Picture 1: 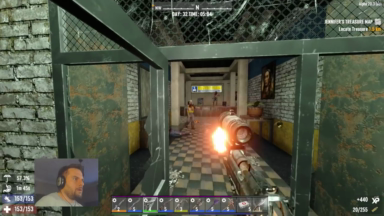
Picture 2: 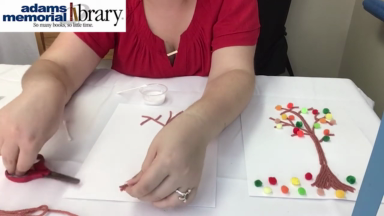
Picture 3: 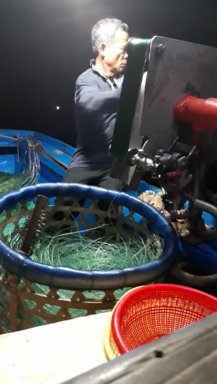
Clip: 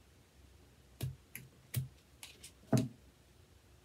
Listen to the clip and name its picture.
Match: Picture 2